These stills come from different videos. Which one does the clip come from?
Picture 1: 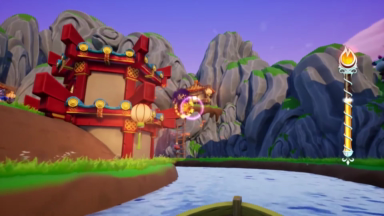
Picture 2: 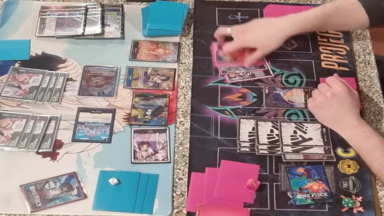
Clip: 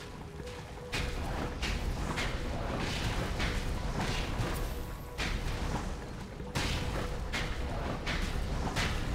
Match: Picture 1